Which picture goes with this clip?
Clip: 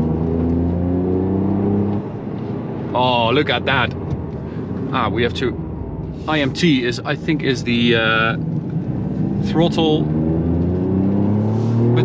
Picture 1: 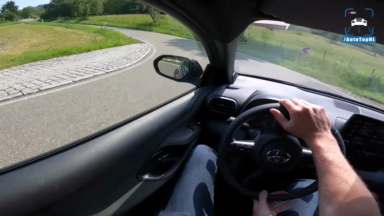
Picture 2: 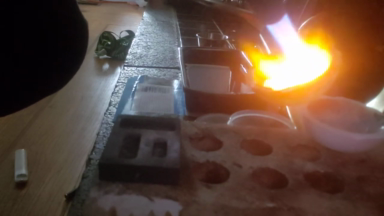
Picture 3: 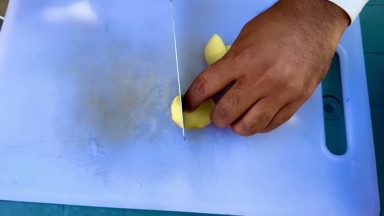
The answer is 1